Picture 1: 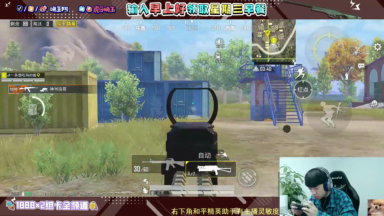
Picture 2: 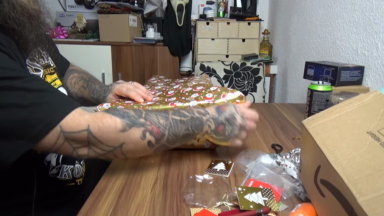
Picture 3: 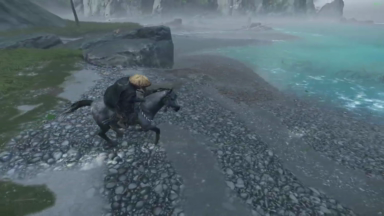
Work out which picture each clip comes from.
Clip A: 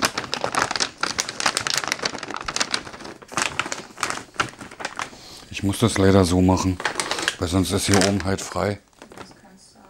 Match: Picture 2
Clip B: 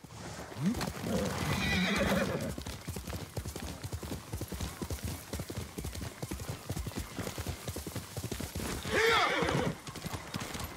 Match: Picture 3